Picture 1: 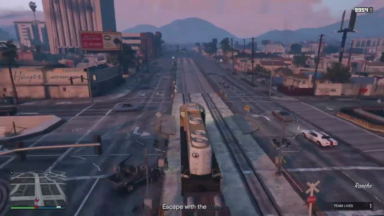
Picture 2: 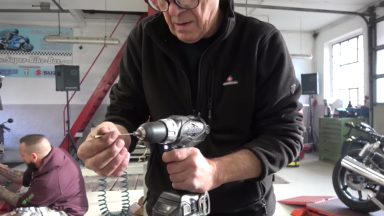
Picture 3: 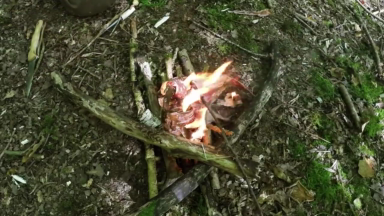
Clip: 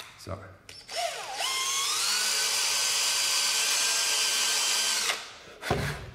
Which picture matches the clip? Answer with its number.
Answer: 2